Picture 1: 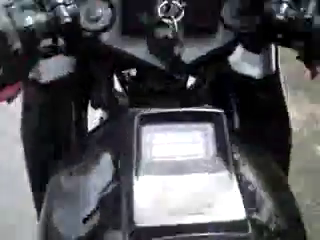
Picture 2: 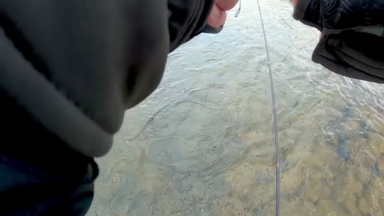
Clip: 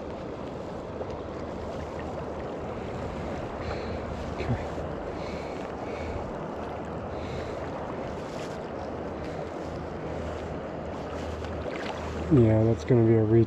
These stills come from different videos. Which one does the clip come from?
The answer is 2